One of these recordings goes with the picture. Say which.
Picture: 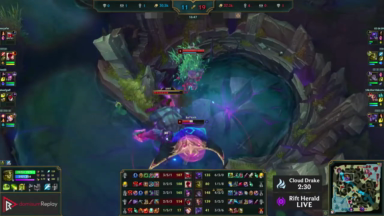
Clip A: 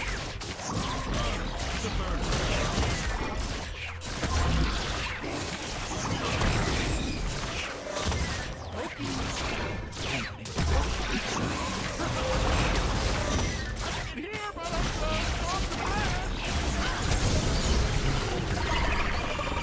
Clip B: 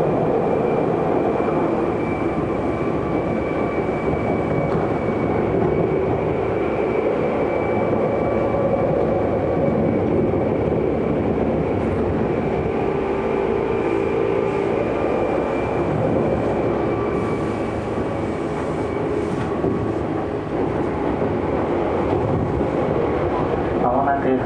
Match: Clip A